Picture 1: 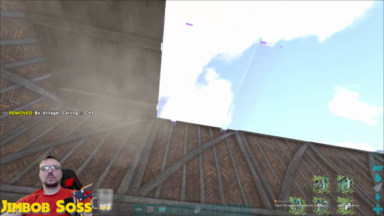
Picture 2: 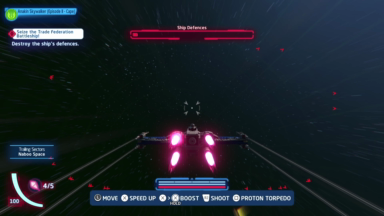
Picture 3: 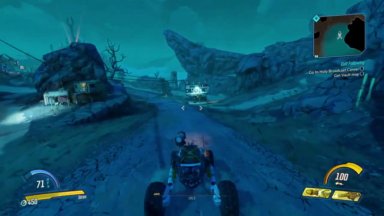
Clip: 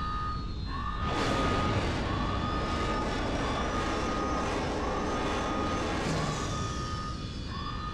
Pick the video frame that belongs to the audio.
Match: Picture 2